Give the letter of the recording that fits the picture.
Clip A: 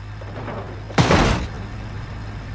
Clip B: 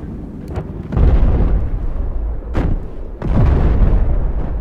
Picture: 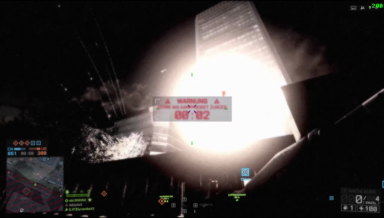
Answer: B